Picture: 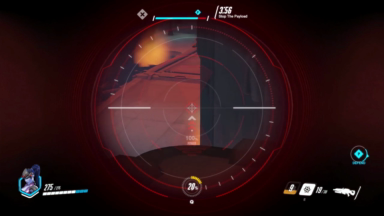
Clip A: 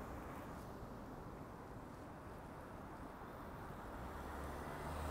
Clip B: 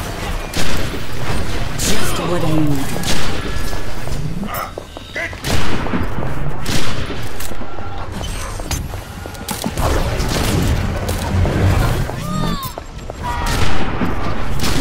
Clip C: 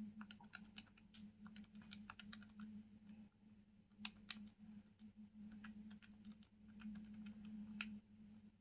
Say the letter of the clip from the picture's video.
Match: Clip B